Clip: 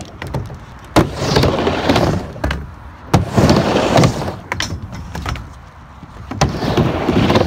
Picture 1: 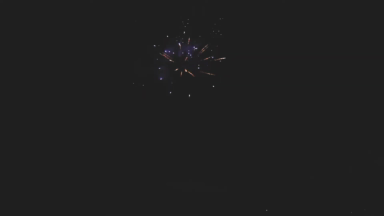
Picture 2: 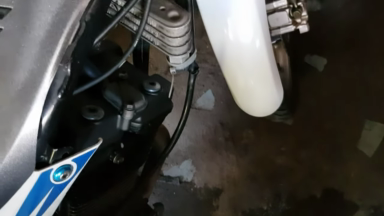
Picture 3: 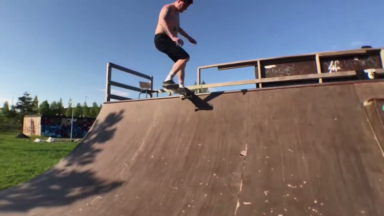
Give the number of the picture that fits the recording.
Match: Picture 3